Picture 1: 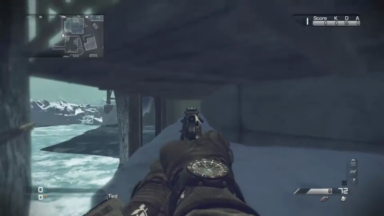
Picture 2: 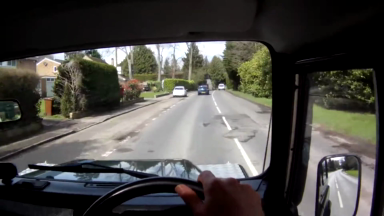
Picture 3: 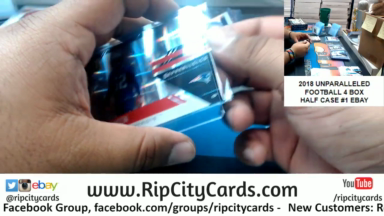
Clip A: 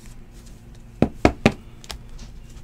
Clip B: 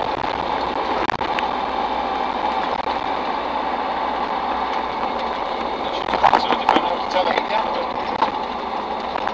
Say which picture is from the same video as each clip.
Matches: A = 3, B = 2